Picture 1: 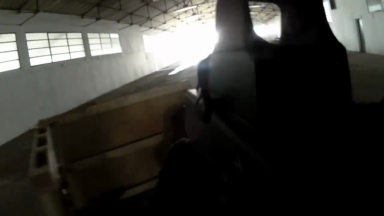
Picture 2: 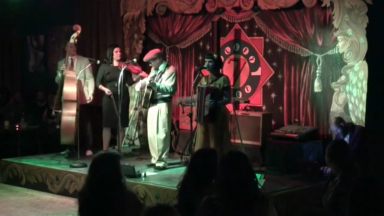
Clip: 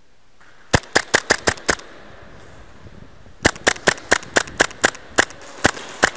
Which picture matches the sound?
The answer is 1